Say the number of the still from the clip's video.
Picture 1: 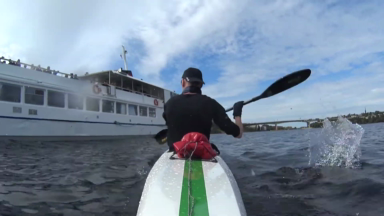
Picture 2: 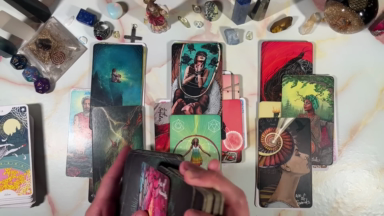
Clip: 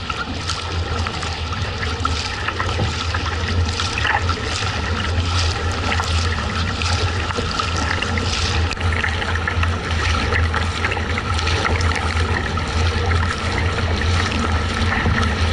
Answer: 1